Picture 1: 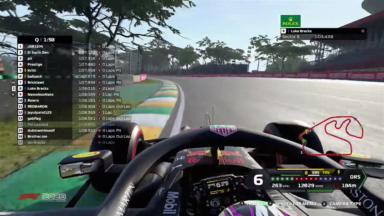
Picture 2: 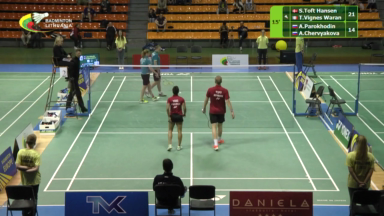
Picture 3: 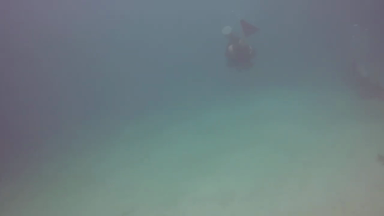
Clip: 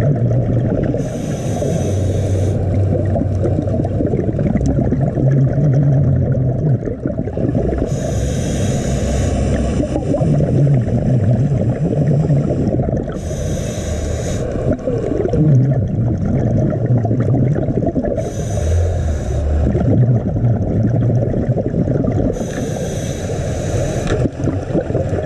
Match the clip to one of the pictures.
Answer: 3